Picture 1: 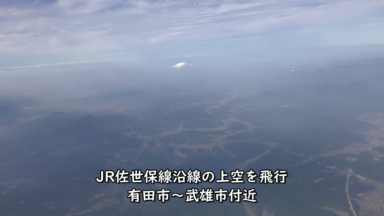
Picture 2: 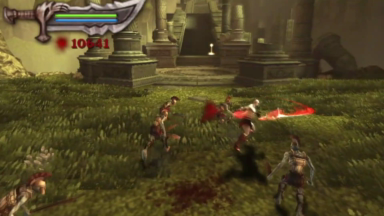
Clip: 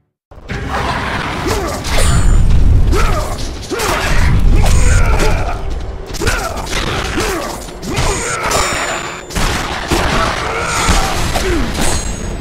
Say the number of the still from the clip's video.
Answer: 2